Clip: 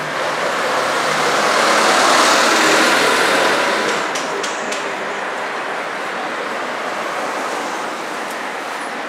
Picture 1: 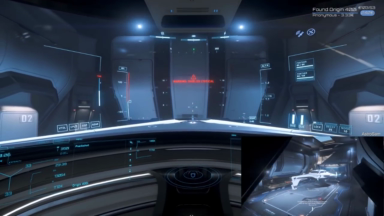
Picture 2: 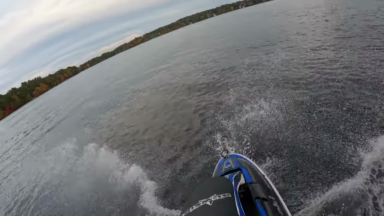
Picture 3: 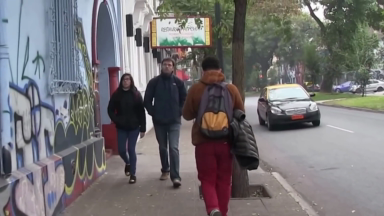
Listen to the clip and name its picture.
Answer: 3